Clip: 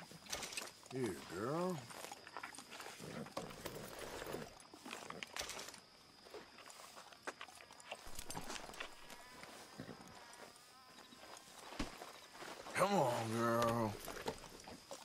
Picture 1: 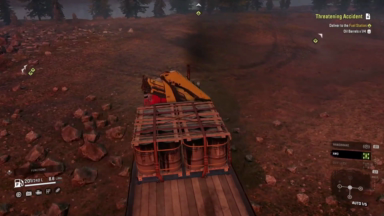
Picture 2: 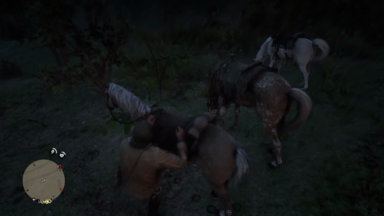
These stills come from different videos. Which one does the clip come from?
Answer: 2